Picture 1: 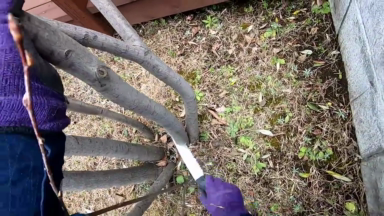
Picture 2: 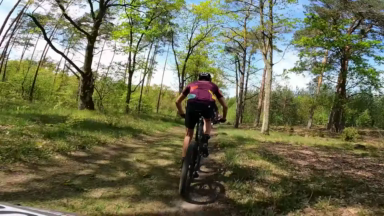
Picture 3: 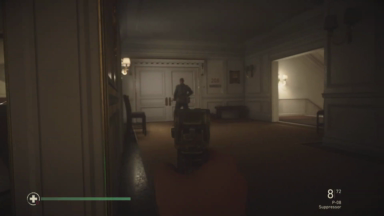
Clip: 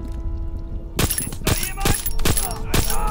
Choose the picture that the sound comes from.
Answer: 3